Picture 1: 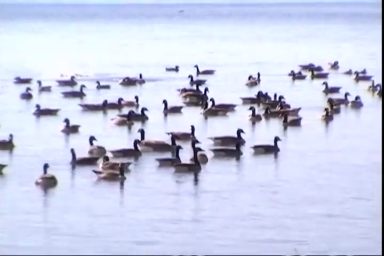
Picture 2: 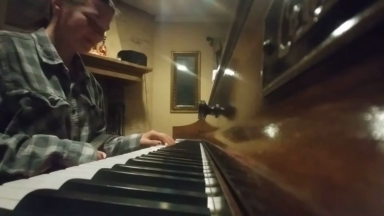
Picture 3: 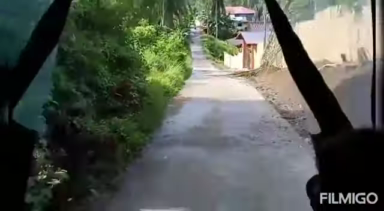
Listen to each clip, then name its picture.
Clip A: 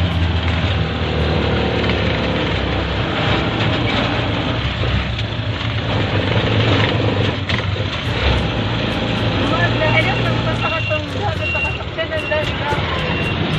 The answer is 3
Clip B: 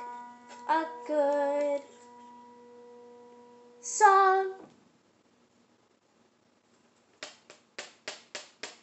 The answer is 2